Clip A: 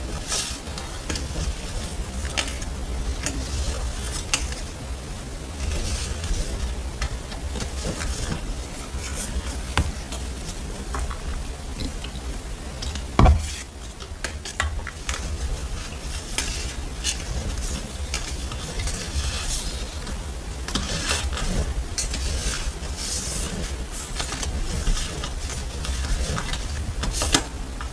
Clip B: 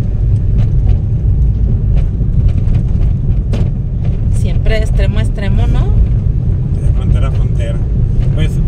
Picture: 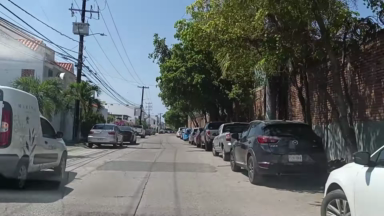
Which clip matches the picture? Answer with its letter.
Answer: B